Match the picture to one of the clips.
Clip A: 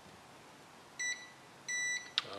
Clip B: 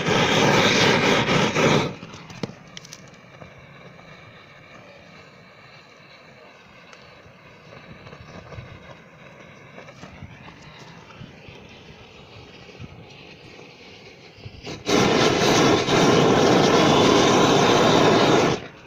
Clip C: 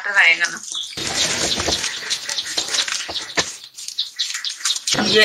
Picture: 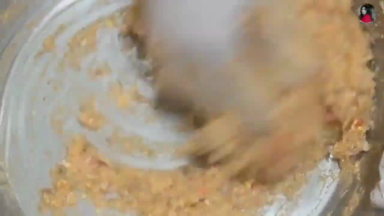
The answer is C